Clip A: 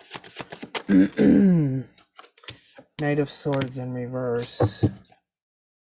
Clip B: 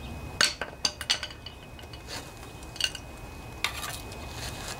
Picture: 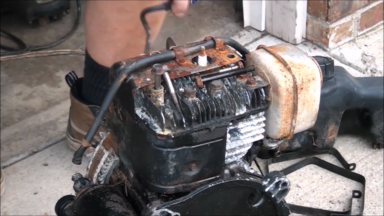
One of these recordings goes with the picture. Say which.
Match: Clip B